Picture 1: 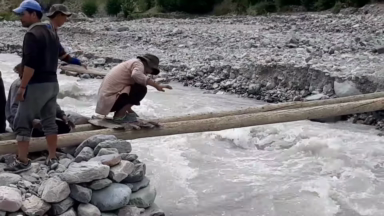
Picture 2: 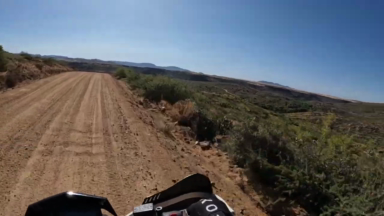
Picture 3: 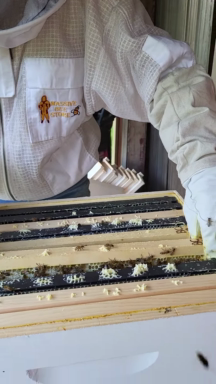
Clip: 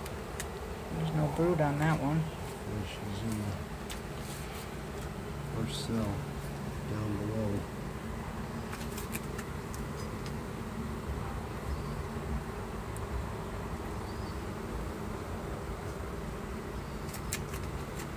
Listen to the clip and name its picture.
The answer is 3